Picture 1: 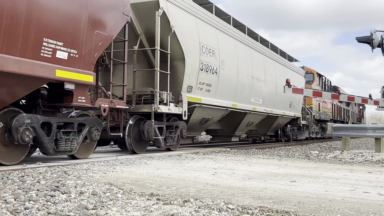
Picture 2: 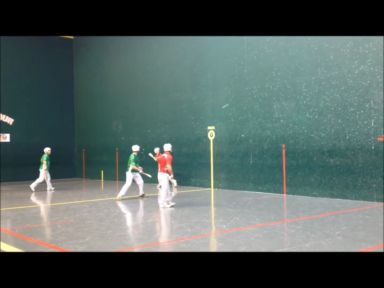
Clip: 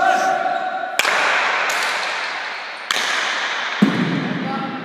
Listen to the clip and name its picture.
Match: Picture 2